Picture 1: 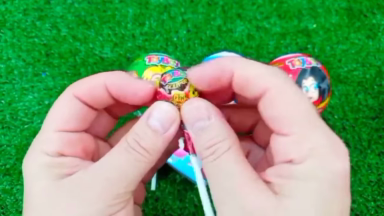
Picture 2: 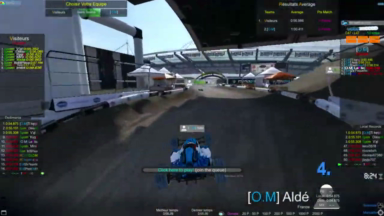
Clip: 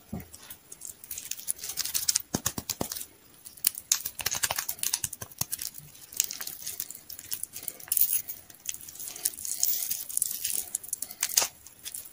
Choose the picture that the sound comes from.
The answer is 1